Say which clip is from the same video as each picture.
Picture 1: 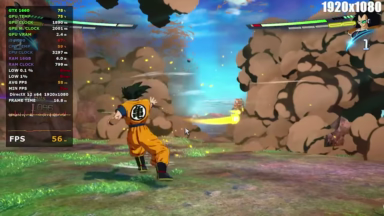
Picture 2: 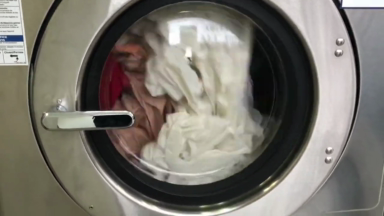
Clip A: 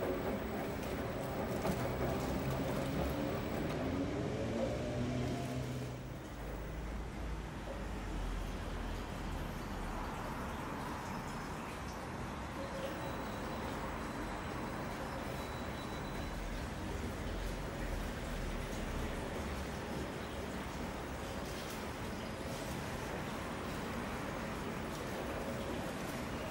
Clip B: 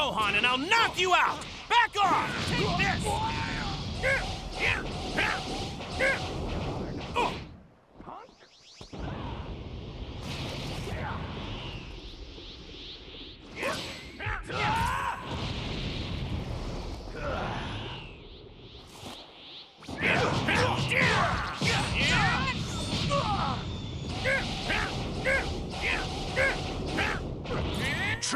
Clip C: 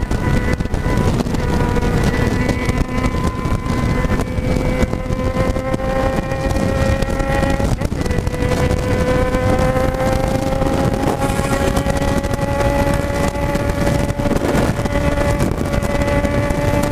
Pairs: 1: B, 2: A